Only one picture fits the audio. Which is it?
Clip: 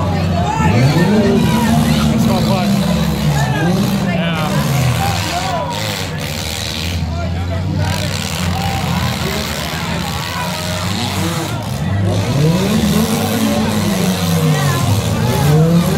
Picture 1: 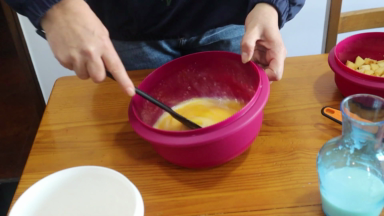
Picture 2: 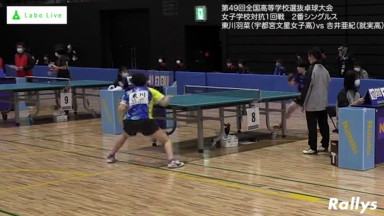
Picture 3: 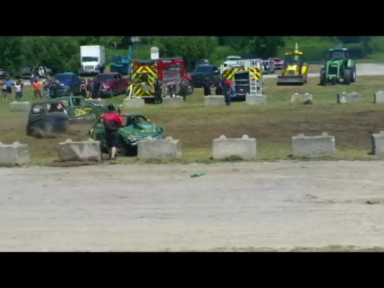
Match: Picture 3